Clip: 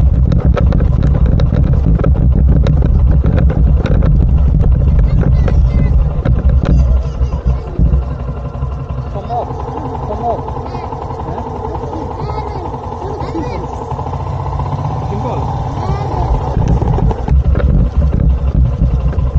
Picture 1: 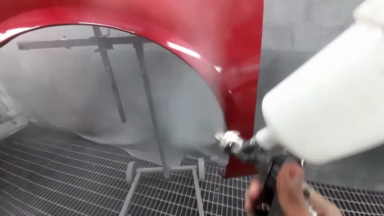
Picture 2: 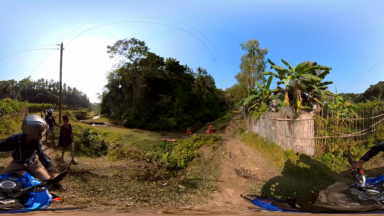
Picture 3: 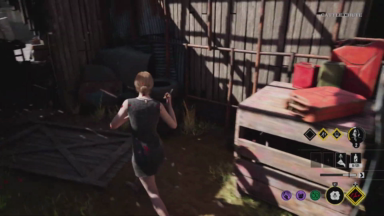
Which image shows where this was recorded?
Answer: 2